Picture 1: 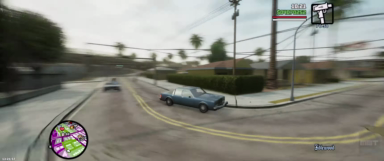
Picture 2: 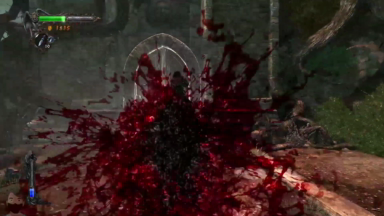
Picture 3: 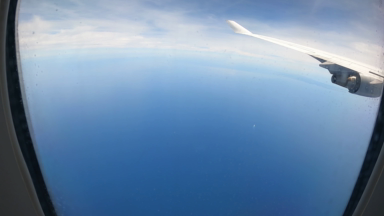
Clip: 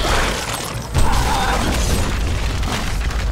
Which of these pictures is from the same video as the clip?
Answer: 2